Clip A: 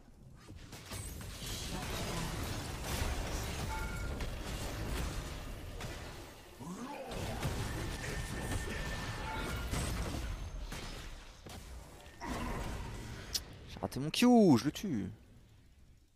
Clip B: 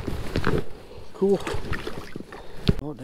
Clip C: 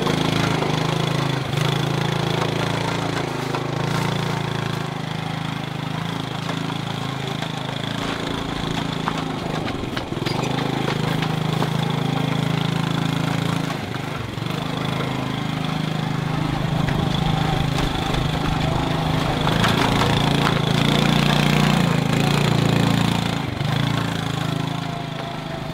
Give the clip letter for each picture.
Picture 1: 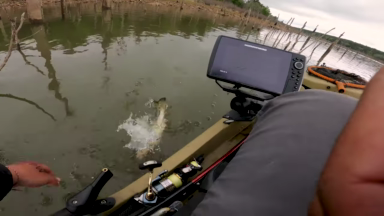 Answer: B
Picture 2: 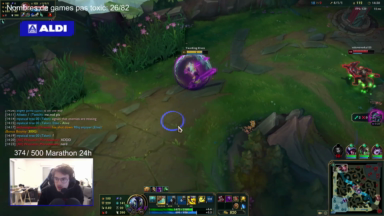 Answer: A